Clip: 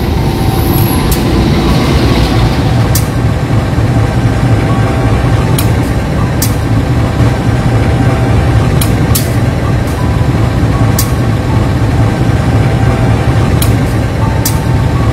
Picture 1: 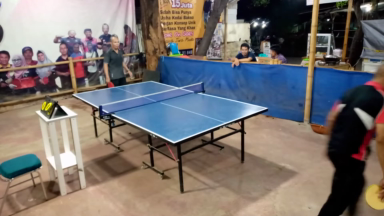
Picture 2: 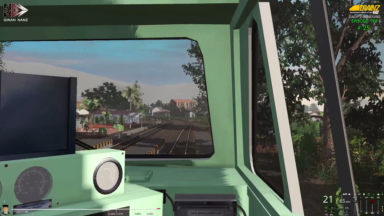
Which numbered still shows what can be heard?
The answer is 2